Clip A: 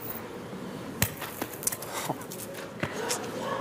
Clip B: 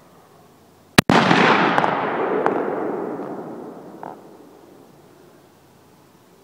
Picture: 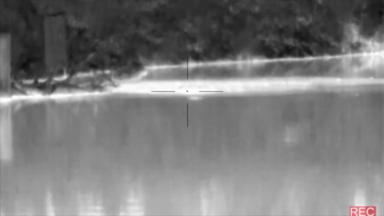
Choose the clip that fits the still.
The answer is B